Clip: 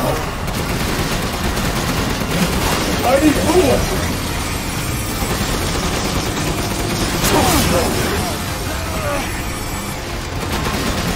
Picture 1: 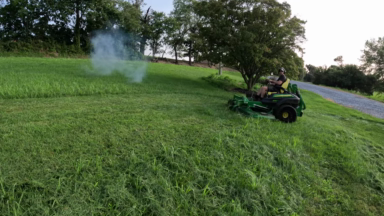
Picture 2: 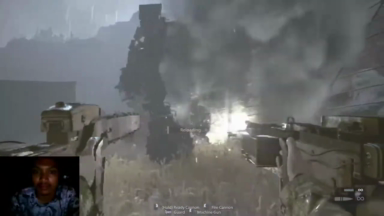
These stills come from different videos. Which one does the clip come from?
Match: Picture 2